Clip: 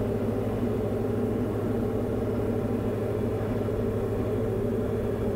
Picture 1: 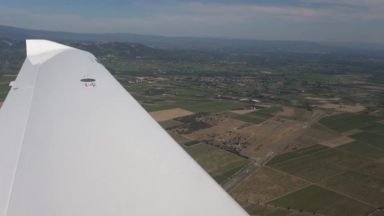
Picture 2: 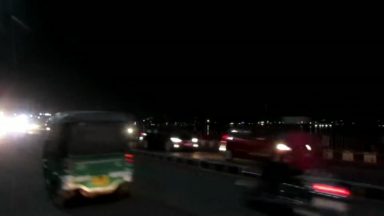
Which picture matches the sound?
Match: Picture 1